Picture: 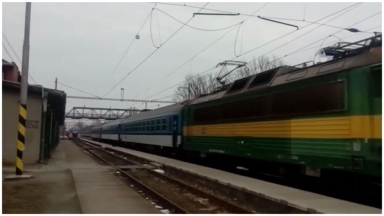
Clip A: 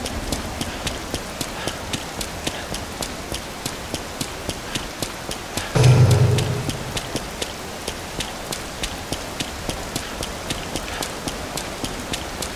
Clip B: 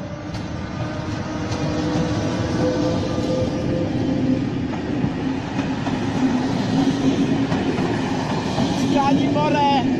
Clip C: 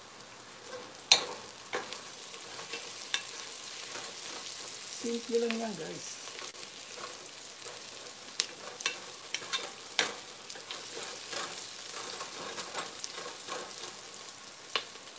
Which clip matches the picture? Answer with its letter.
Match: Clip B